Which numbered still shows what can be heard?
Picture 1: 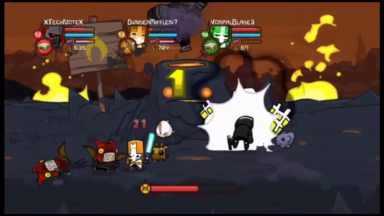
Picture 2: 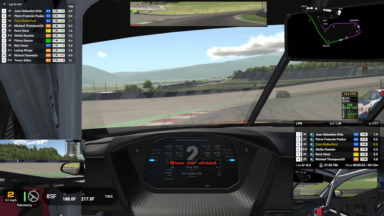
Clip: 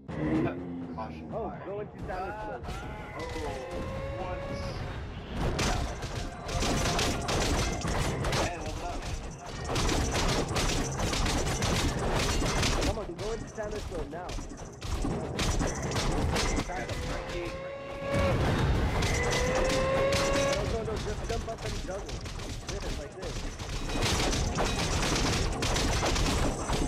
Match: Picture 1